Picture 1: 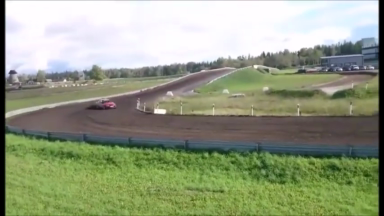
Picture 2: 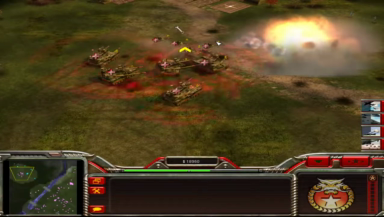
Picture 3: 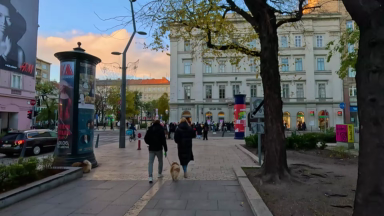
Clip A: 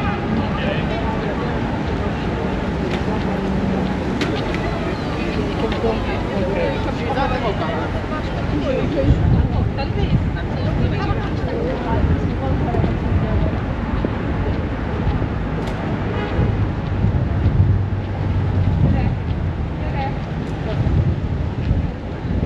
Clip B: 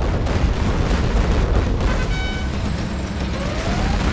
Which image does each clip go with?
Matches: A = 3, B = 2